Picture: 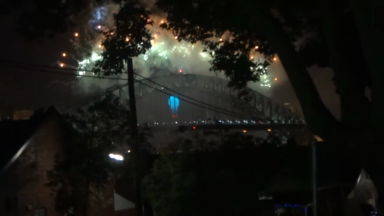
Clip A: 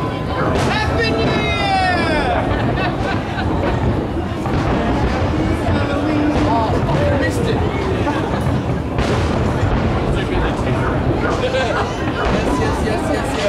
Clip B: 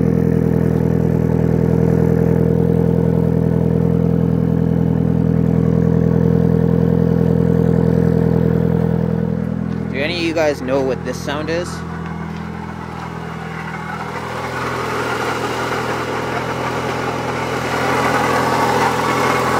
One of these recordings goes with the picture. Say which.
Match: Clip A